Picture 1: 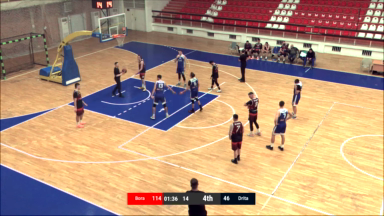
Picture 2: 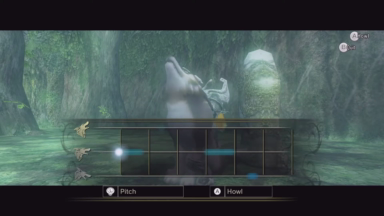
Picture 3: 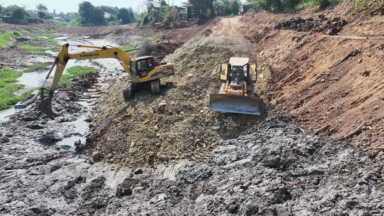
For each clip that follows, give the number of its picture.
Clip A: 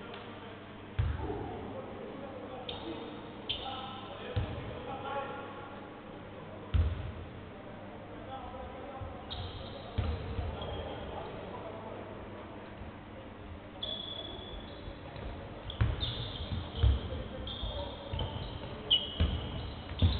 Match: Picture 1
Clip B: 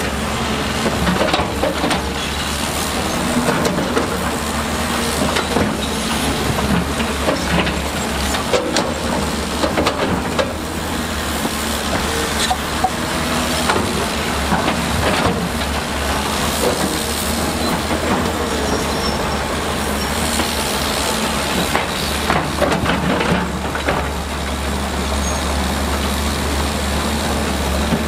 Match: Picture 3